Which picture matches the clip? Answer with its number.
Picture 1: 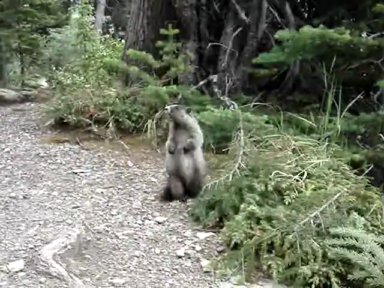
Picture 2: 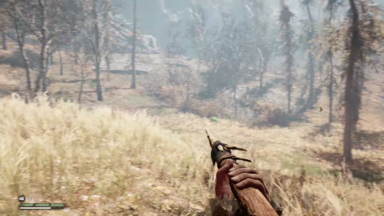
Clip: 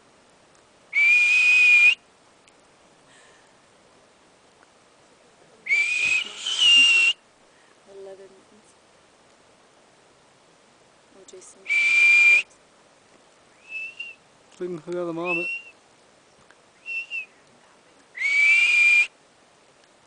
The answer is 1